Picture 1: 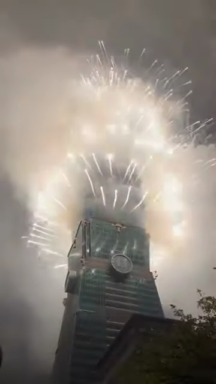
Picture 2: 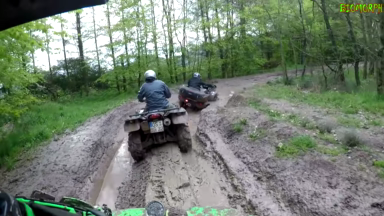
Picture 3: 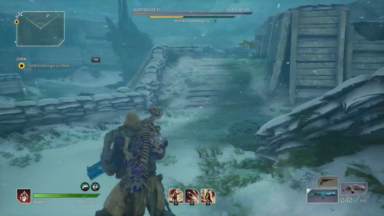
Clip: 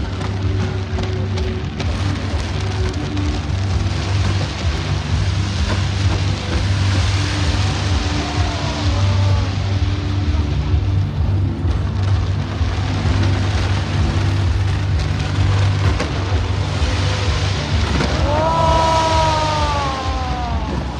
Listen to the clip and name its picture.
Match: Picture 1